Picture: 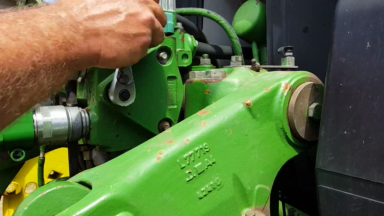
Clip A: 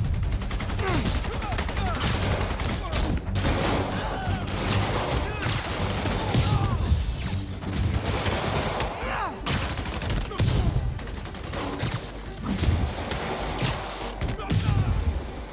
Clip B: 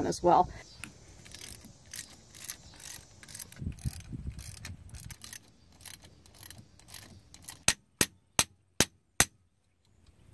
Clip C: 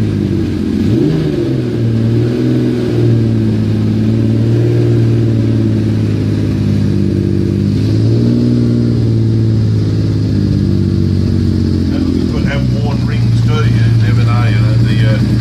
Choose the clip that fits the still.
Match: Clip B